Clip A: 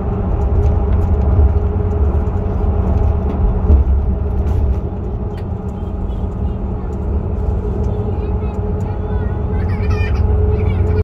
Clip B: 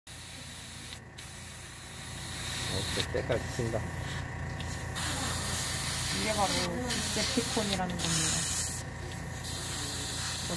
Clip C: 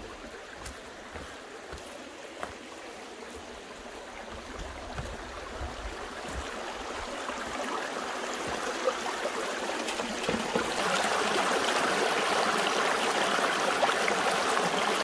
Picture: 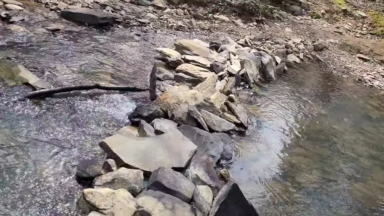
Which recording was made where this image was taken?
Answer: C